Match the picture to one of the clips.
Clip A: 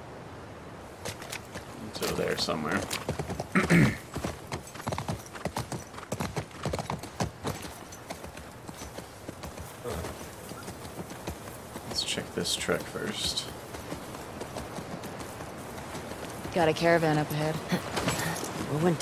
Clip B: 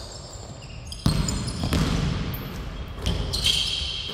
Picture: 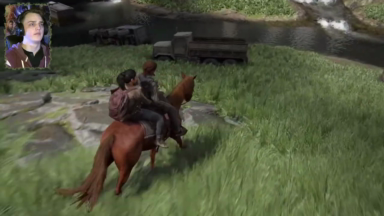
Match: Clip A